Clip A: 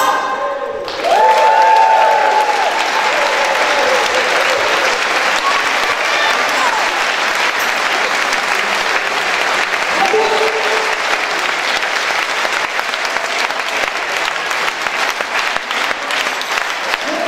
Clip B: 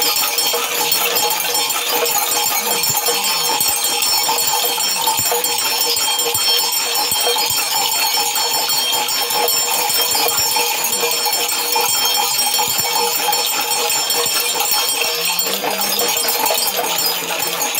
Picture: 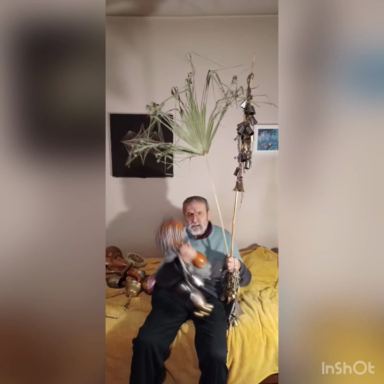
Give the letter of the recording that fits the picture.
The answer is B